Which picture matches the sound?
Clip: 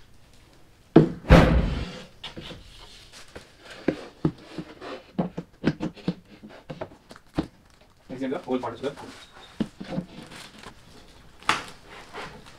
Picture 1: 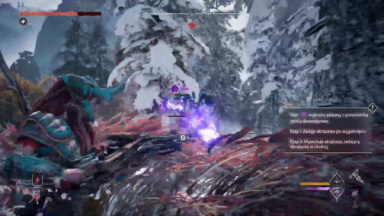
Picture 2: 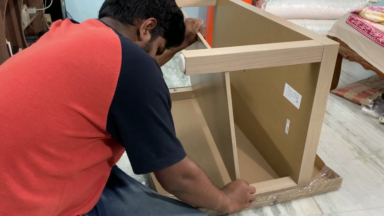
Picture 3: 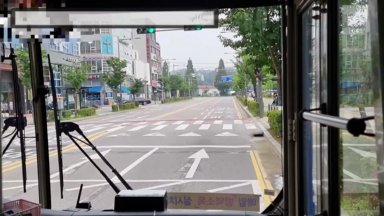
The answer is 2